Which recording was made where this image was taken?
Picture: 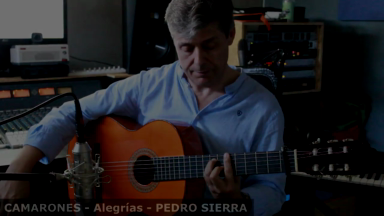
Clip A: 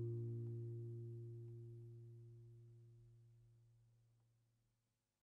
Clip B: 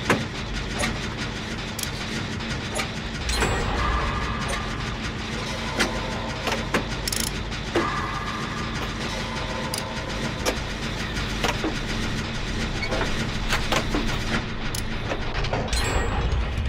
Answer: A